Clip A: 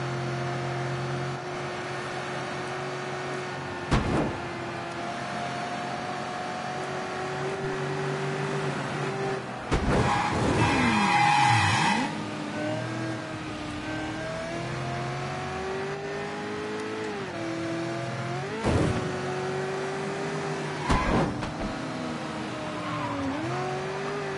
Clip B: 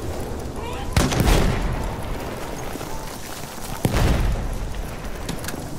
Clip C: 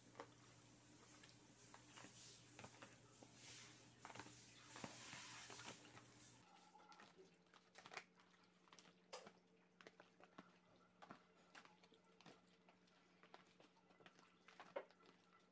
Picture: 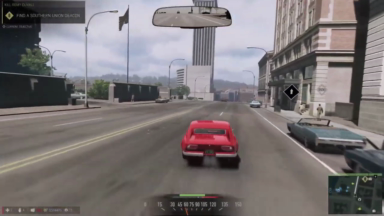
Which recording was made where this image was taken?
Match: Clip A